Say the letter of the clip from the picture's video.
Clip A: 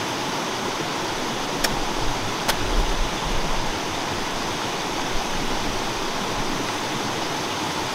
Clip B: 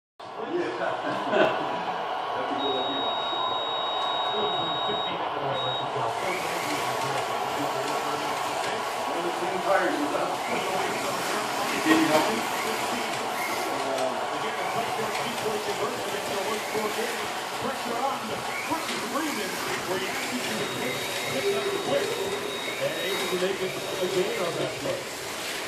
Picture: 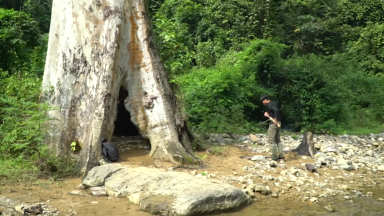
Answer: A